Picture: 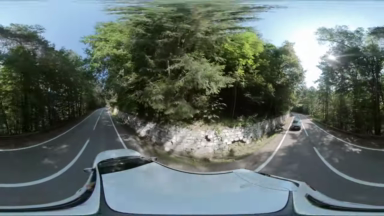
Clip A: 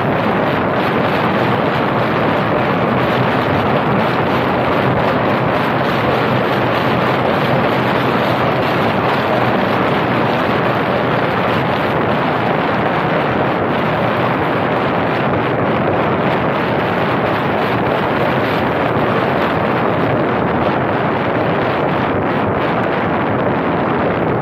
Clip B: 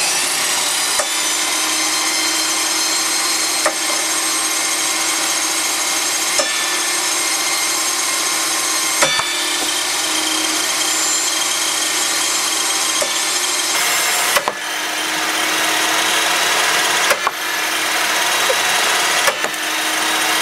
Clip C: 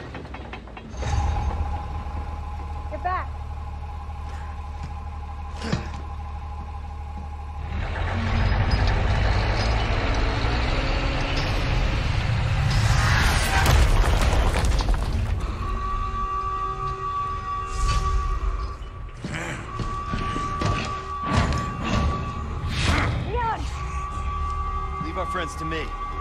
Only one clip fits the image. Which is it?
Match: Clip A